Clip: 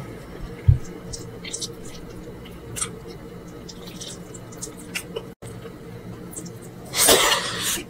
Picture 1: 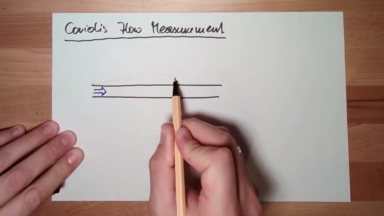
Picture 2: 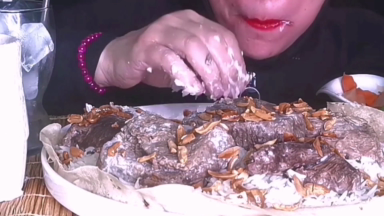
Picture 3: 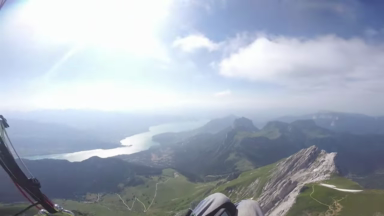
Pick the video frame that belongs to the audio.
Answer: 2